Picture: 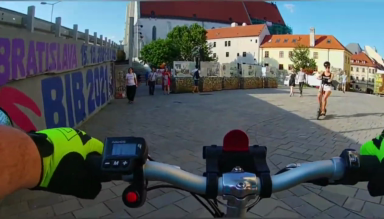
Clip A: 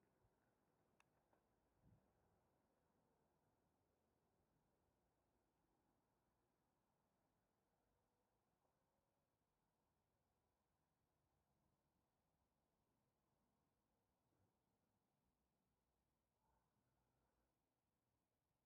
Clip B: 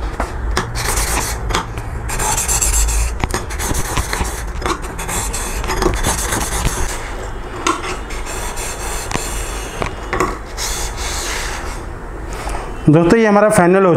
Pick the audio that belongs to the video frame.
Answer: A